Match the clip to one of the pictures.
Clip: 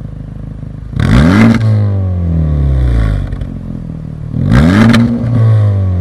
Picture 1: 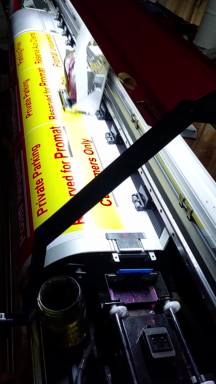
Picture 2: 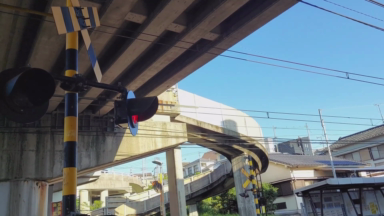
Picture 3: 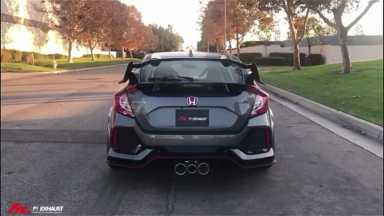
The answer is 3